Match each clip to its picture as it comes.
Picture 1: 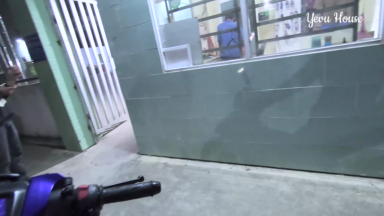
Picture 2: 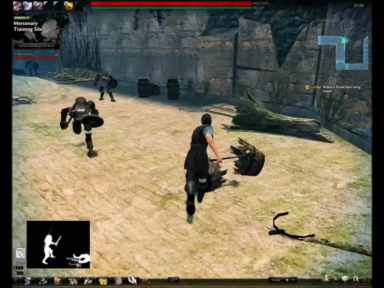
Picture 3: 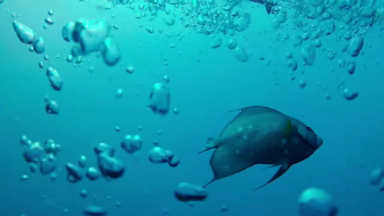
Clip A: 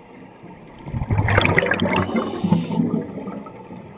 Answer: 3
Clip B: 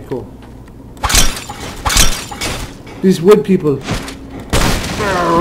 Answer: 2